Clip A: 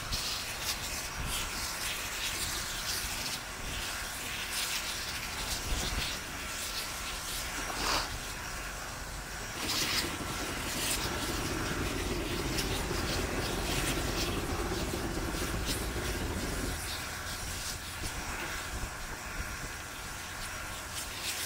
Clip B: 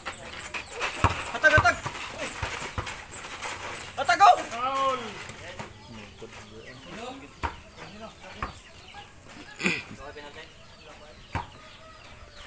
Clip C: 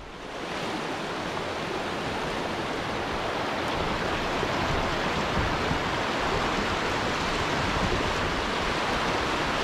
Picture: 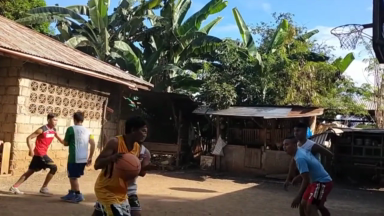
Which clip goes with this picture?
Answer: B